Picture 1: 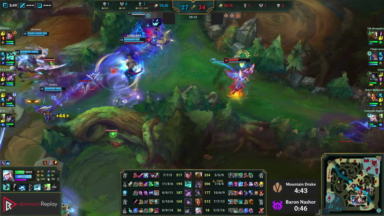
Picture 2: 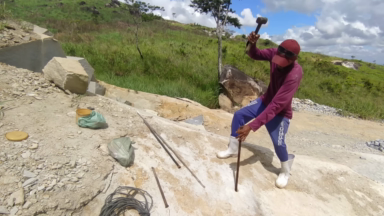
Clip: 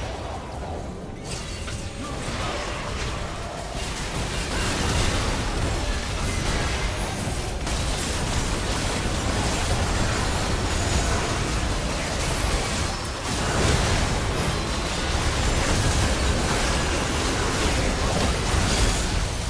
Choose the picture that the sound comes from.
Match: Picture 1